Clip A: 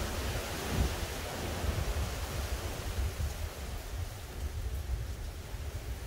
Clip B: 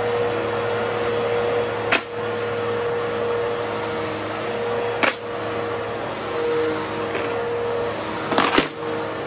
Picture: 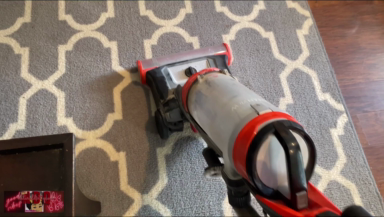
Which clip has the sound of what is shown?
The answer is B